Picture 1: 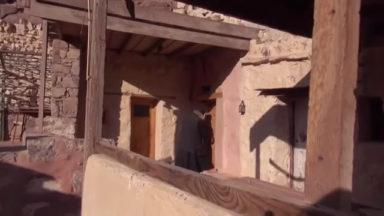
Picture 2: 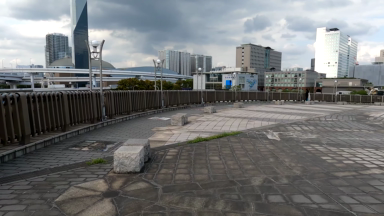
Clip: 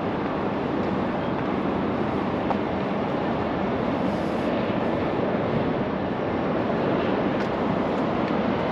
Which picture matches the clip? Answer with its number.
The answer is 2